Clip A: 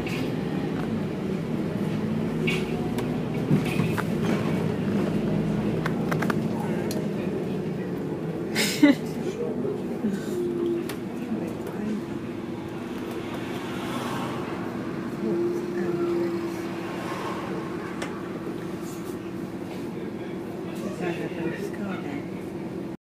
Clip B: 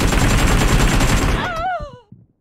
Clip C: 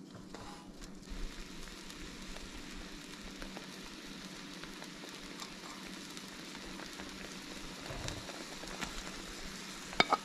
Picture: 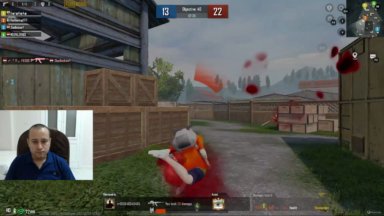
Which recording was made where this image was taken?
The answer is B